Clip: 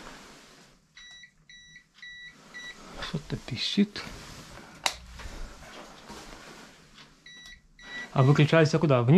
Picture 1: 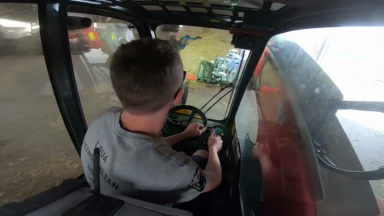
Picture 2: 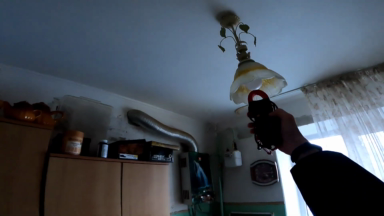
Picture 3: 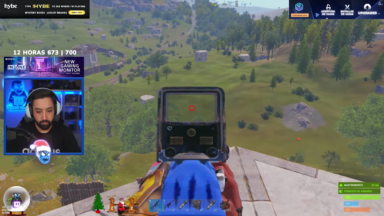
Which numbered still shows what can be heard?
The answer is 2